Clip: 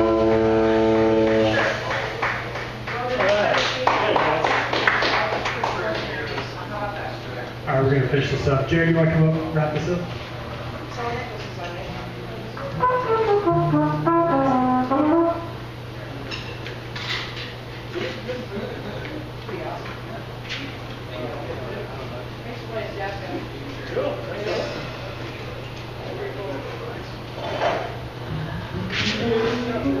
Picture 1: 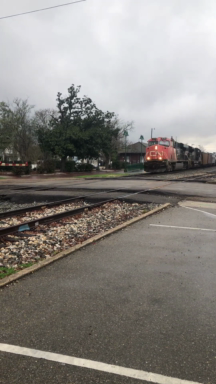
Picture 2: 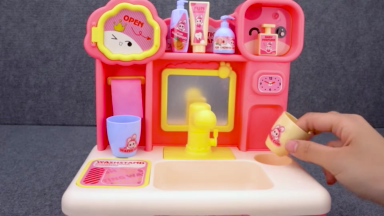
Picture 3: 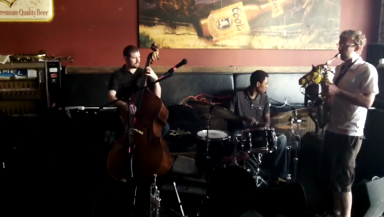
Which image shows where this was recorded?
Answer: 3